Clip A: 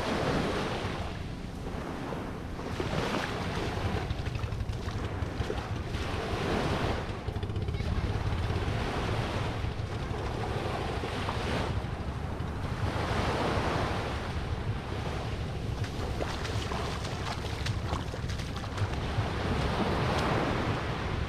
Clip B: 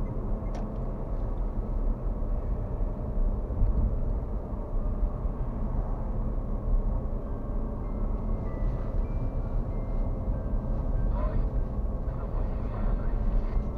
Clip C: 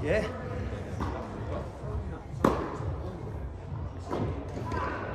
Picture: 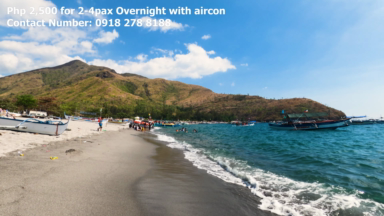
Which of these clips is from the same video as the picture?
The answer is A